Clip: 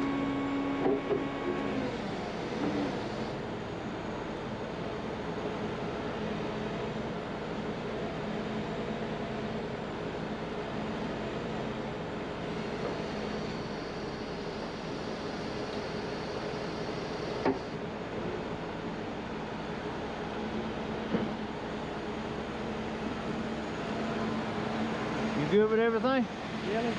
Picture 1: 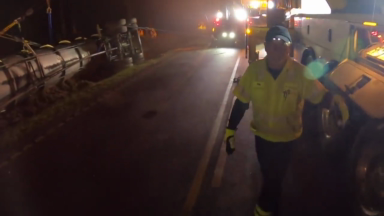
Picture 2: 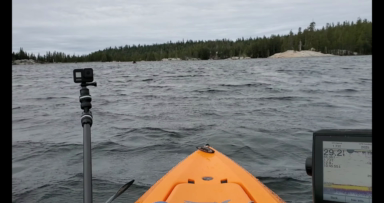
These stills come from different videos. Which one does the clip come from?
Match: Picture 1